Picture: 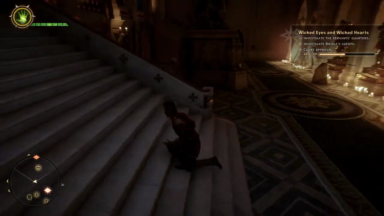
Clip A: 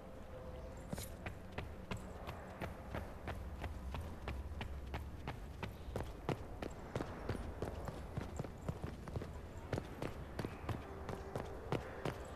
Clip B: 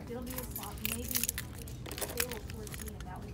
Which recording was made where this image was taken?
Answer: A